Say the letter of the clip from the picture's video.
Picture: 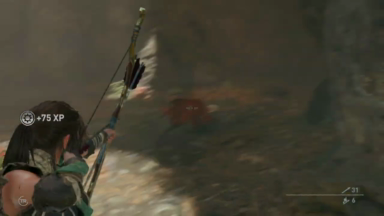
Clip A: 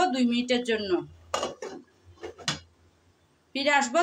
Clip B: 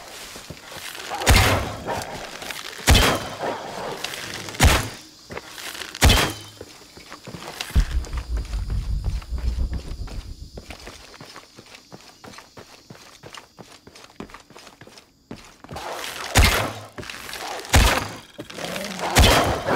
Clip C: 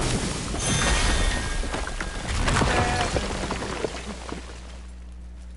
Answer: B